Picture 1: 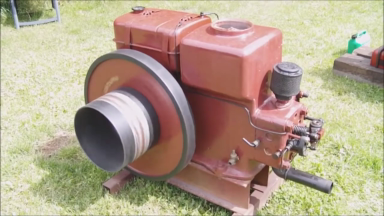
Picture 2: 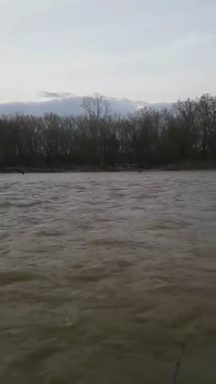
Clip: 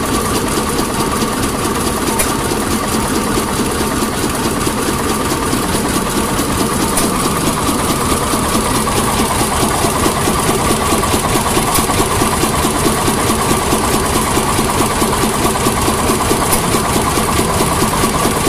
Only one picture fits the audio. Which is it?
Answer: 1